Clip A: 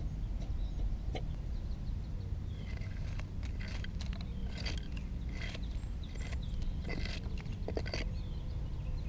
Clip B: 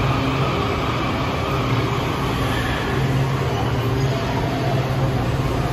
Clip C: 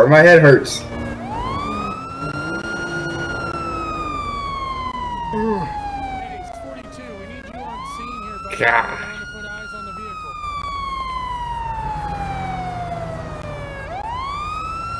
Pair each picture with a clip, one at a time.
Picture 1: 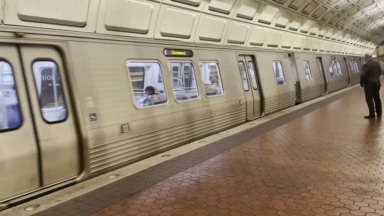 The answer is B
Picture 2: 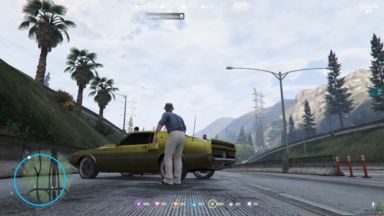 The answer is C